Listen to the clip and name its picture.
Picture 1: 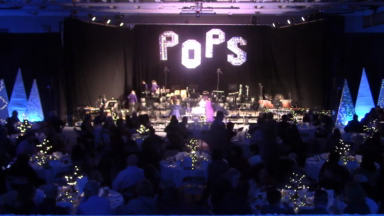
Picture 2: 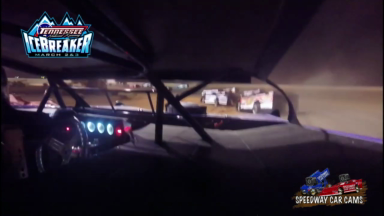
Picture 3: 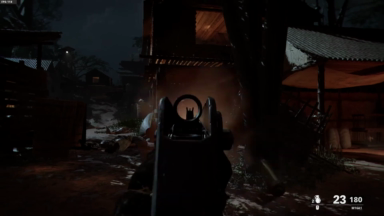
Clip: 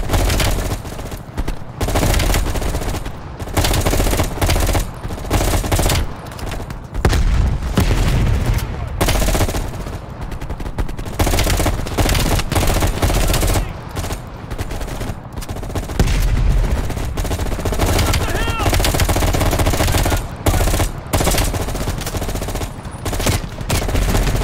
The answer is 3